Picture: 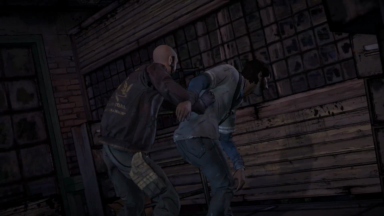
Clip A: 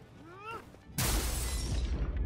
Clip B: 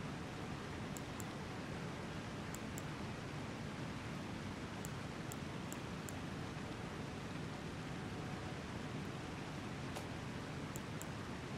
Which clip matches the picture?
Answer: A